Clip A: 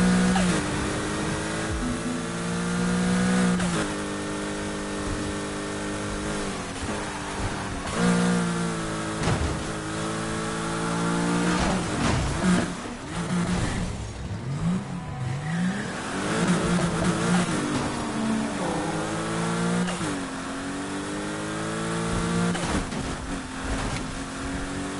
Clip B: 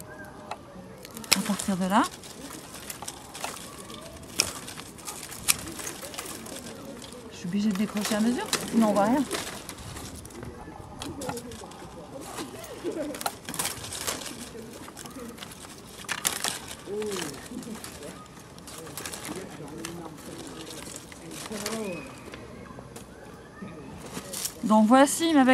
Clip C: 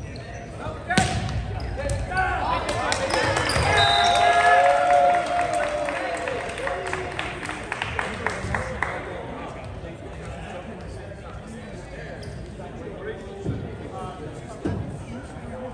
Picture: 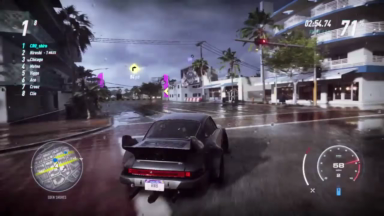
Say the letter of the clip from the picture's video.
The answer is A